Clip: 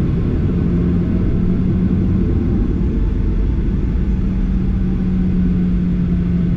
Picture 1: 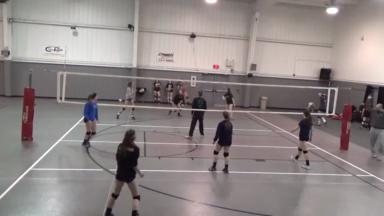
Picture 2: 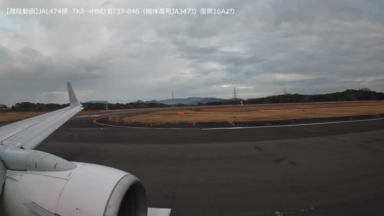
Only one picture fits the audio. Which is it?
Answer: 2